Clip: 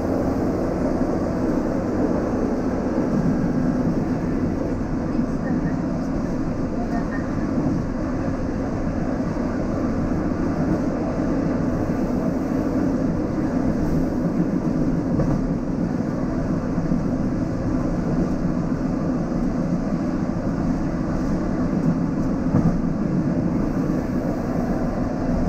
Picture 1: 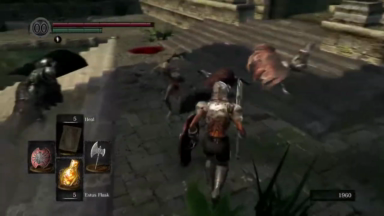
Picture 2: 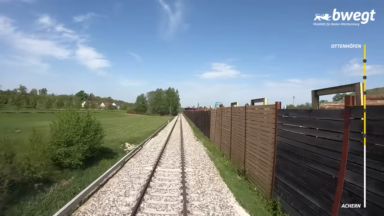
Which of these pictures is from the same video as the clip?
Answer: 2